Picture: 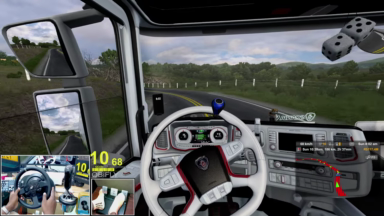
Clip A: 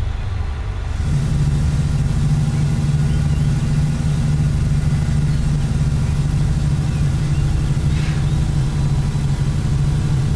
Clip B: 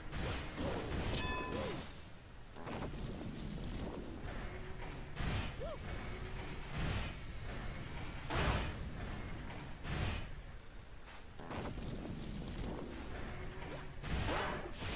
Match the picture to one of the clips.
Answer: A